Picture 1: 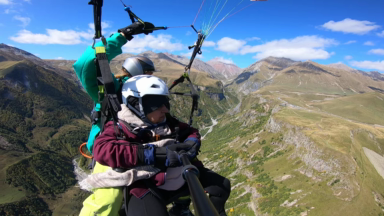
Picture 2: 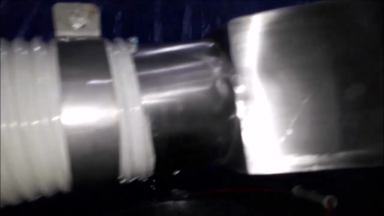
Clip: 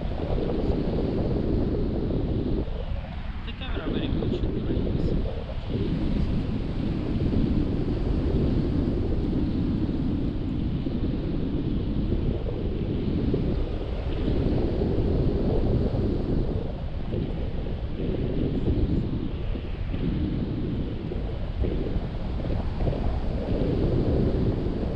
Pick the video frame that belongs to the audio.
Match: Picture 1